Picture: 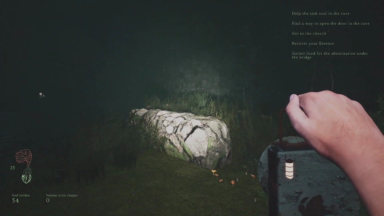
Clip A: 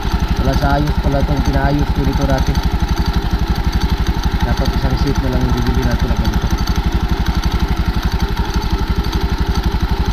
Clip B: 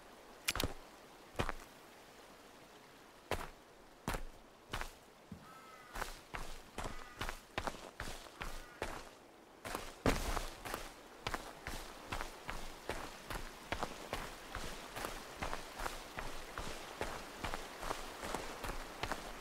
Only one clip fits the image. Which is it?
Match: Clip B